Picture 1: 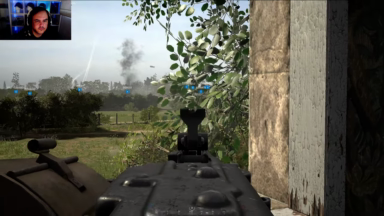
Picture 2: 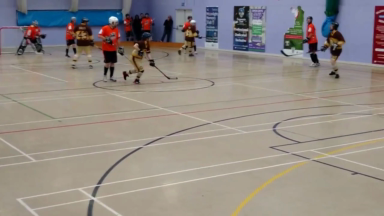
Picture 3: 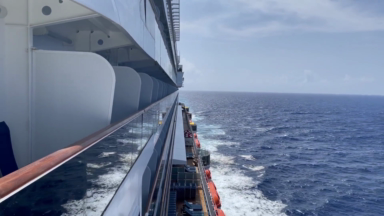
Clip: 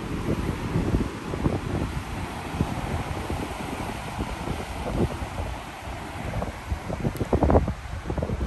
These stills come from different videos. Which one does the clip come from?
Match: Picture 3